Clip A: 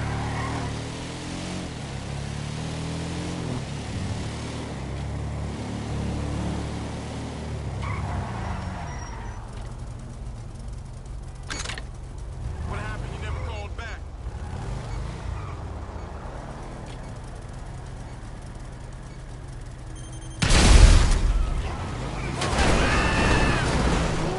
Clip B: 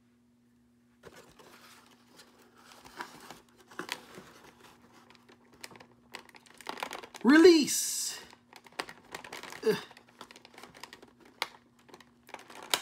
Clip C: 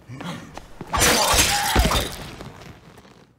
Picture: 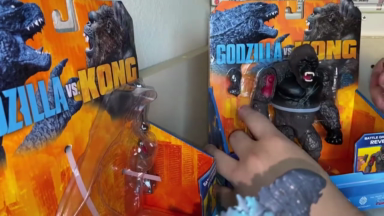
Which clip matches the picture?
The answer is B